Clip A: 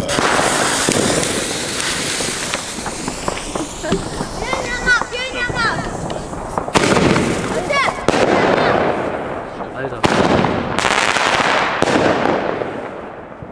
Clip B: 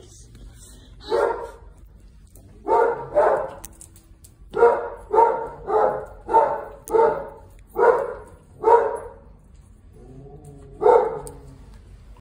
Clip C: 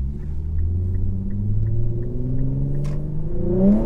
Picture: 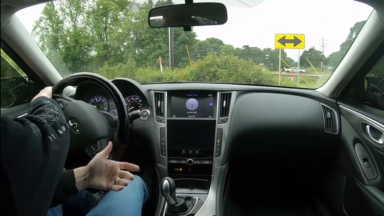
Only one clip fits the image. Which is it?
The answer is C